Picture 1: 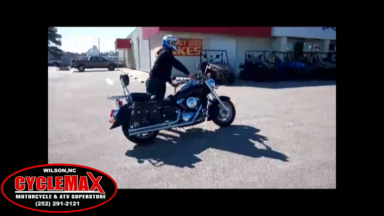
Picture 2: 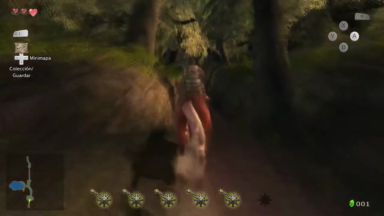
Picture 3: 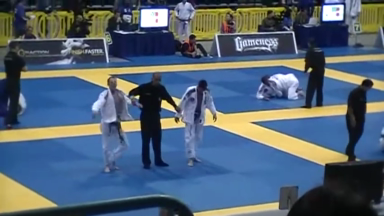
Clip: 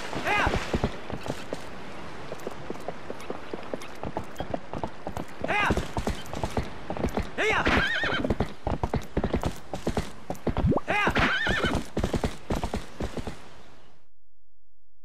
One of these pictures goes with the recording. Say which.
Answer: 2